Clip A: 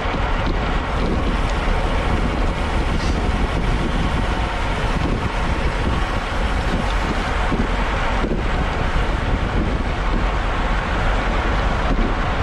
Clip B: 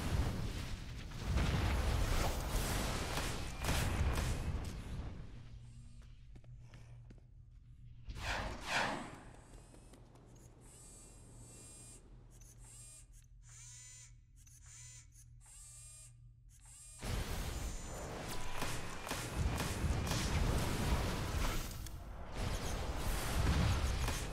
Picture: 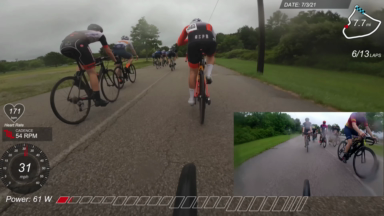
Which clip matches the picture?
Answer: A